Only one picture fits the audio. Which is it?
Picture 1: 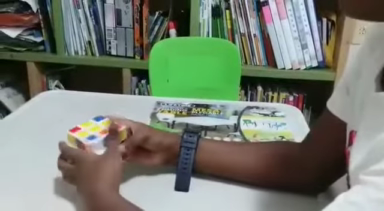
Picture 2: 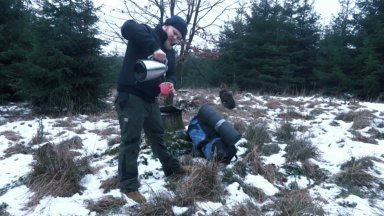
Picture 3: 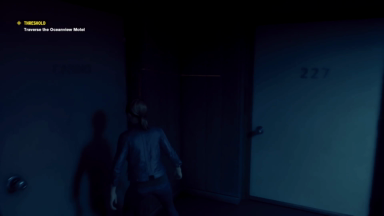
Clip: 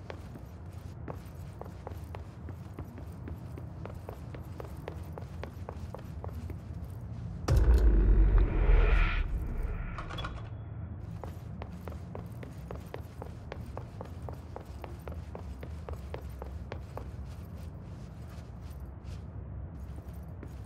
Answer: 3